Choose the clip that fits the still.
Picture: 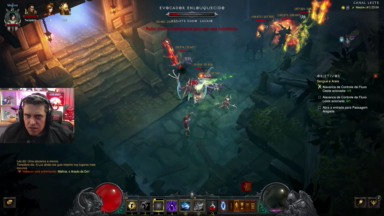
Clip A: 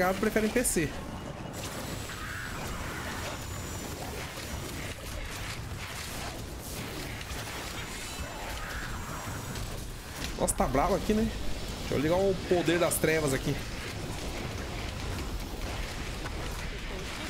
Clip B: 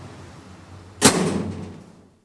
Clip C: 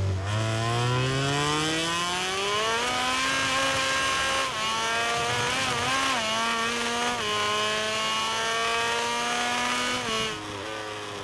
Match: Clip A